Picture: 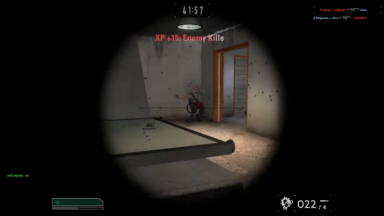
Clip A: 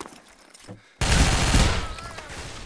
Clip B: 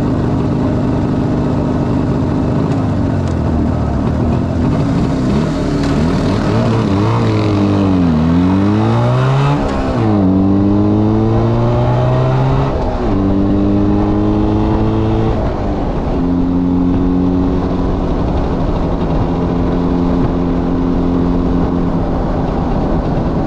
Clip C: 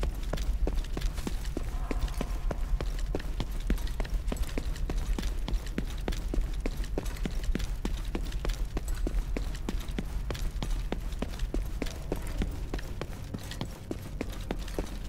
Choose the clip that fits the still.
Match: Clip A